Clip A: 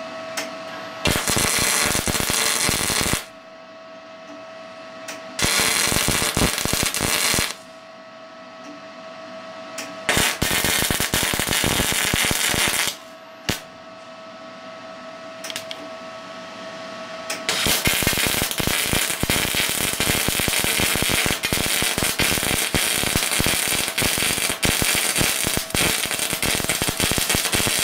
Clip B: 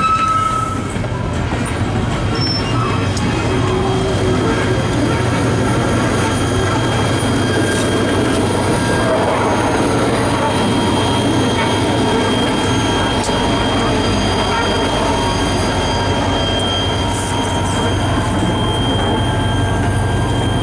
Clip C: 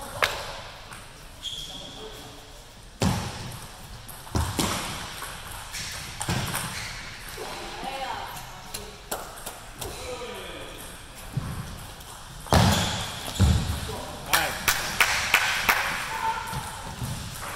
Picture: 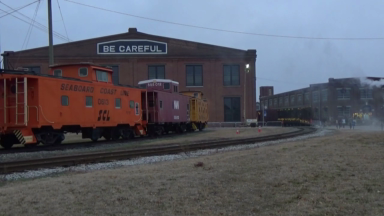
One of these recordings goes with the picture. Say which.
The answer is B